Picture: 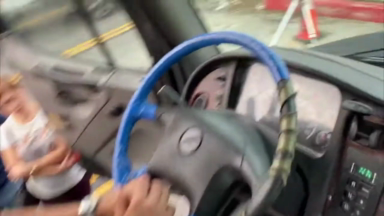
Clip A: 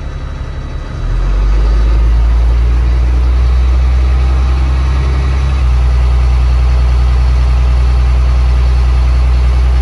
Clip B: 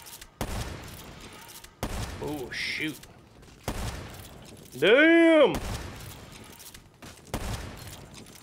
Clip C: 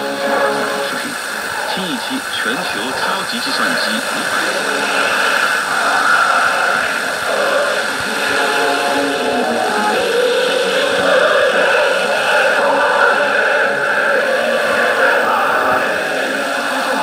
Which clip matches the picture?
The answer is A